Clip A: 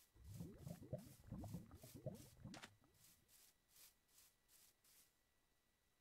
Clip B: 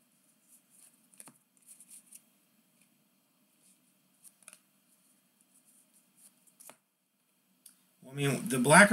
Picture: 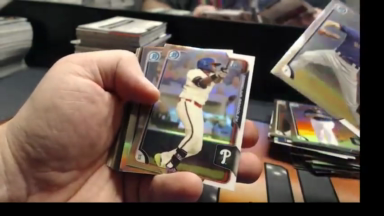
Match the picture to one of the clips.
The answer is B